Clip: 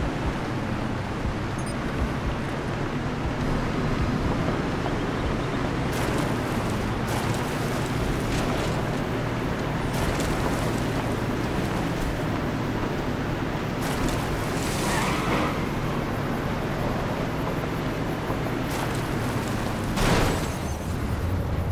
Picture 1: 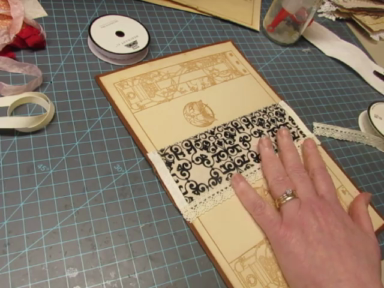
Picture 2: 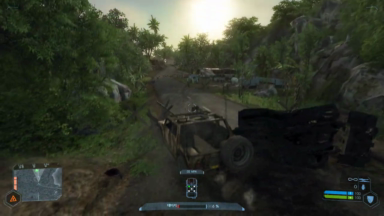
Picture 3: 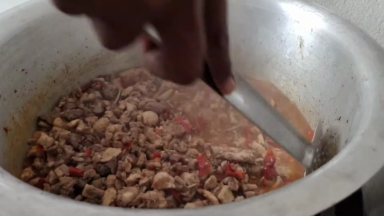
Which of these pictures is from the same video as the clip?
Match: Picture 2